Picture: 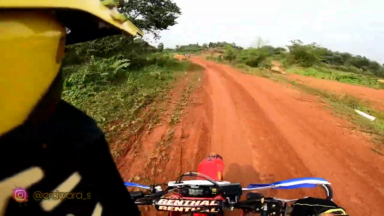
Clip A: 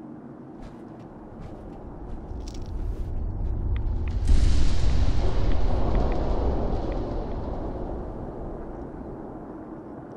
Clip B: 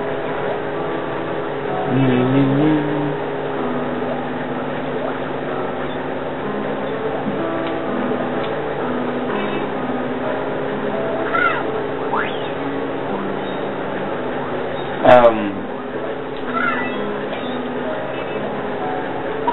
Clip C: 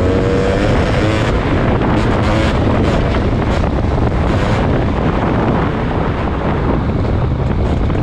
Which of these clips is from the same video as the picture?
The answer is C